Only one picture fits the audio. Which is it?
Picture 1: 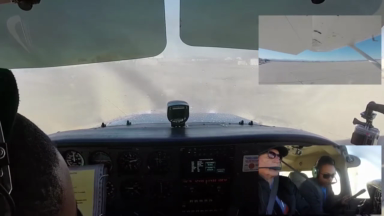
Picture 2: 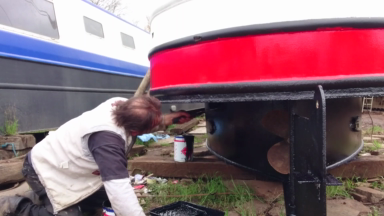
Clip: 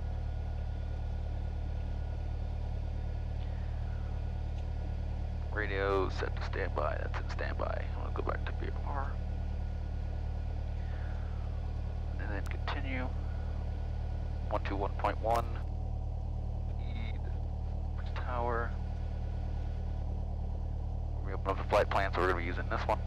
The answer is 1